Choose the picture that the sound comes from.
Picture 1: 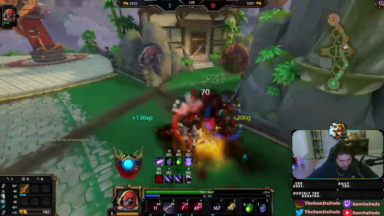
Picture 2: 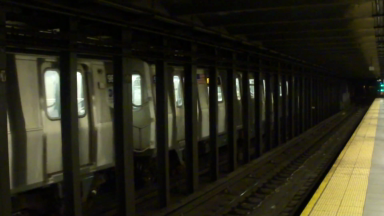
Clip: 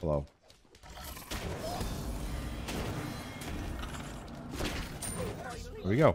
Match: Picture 1